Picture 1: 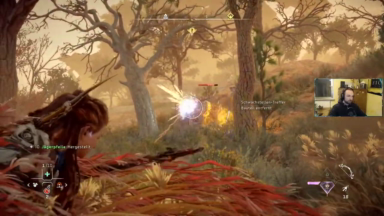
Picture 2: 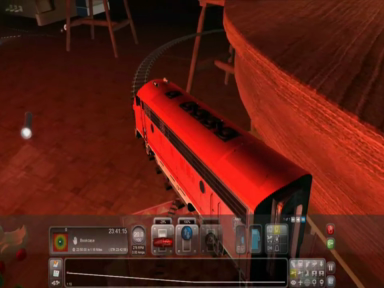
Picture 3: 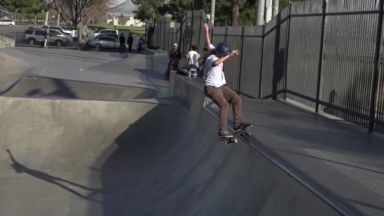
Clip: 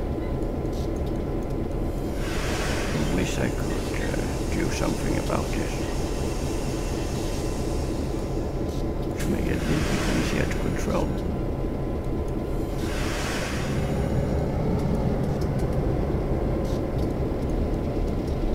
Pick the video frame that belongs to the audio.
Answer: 2